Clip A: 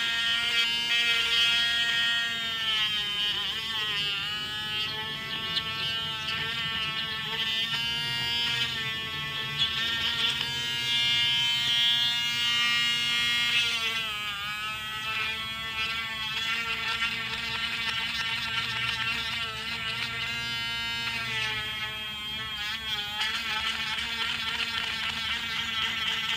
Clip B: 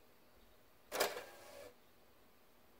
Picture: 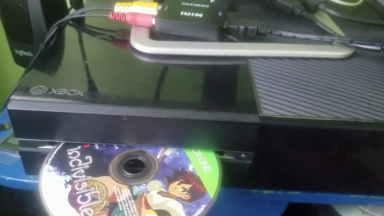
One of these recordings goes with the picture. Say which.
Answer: B